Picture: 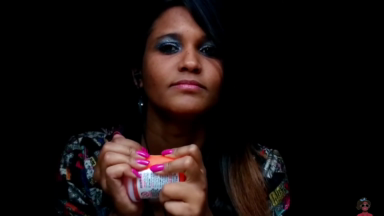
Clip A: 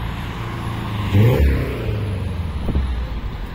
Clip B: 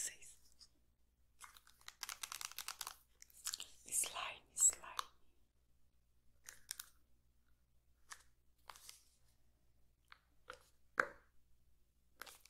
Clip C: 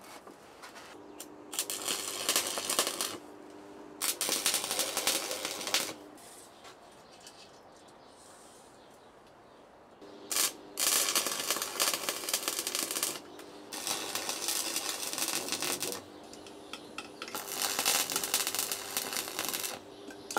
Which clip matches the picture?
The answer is B